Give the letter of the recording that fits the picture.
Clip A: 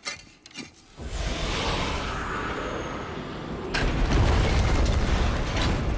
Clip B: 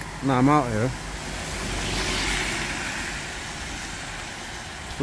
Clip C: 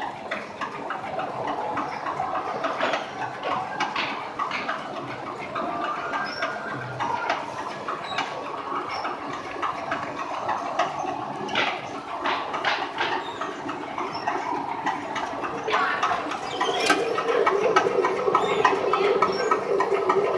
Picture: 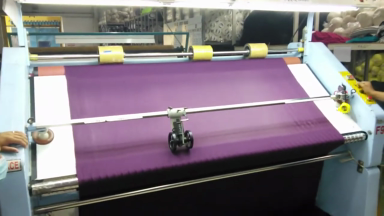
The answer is C